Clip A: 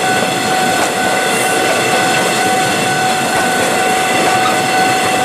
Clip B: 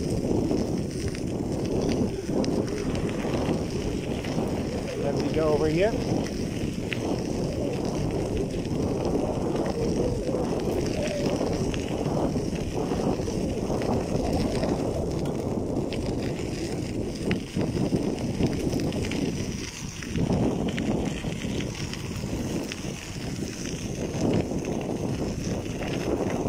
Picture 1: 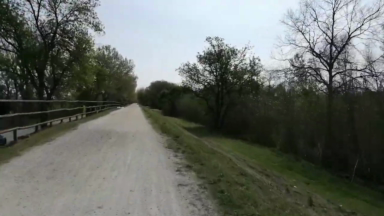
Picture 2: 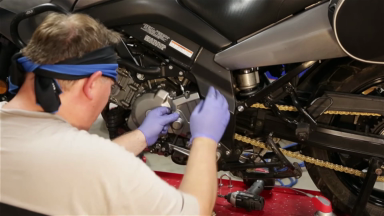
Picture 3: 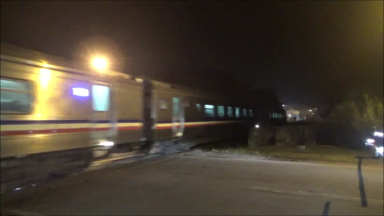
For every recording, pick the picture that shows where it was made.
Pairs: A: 3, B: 1